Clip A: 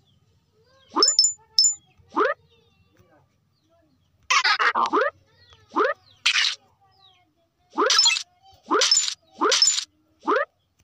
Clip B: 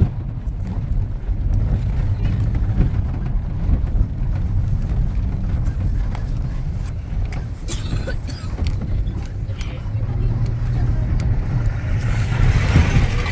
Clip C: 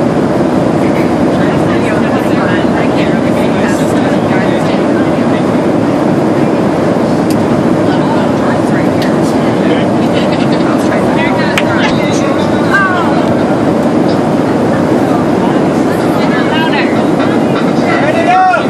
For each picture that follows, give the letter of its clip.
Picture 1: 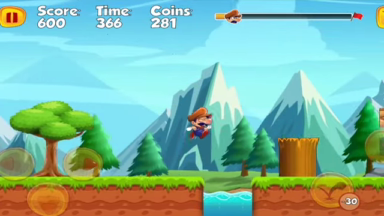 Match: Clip A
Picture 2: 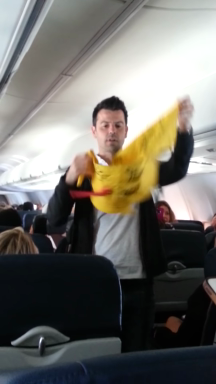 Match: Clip C